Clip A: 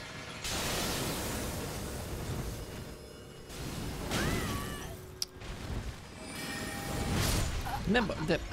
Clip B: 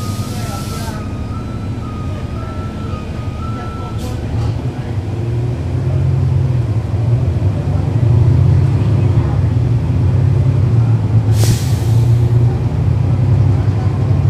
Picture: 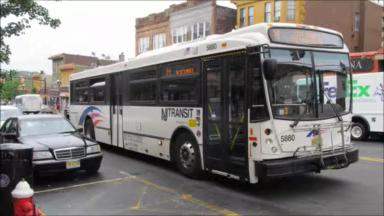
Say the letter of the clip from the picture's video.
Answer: B